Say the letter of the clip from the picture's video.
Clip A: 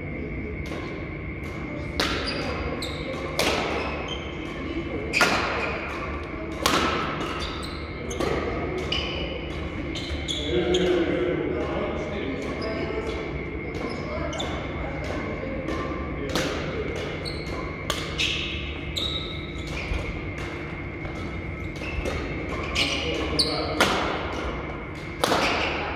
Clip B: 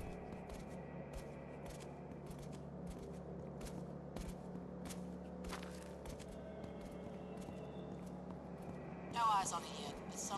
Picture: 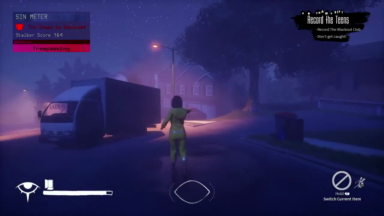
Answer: B